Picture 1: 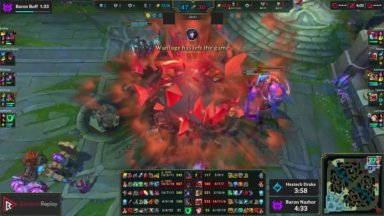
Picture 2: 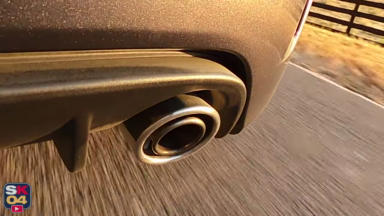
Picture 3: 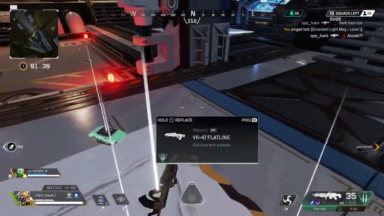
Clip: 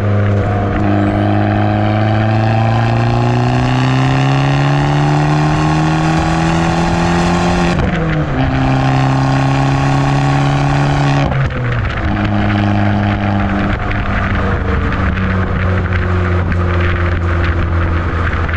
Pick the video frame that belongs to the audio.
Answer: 2